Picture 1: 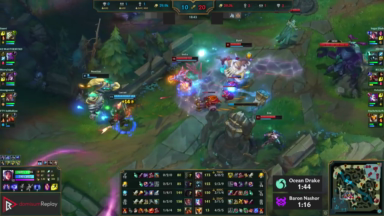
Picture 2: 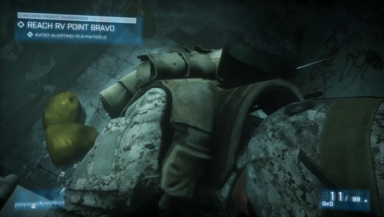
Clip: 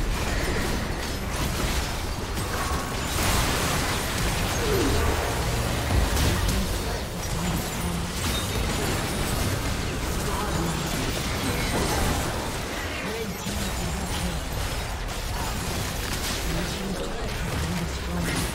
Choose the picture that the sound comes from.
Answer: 1